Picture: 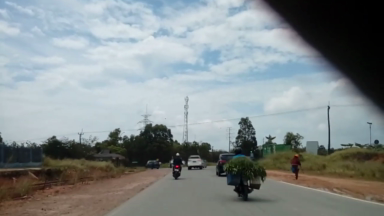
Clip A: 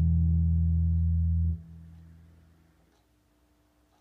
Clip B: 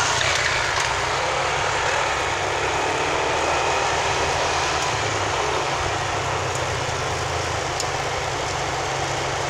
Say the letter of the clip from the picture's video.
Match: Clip B